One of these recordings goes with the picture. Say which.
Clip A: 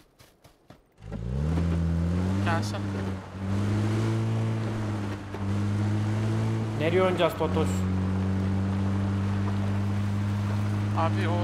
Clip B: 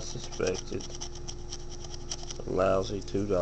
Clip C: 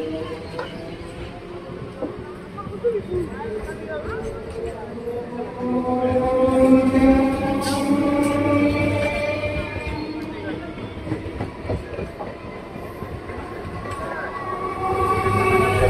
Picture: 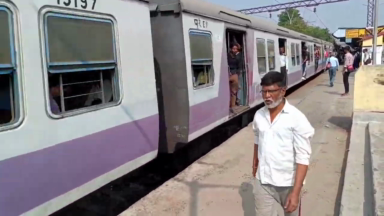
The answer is C